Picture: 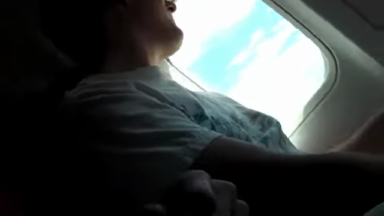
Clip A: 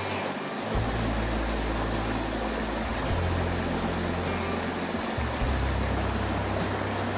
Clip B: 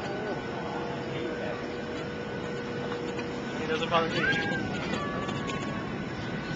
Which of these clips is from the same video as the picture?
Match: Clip B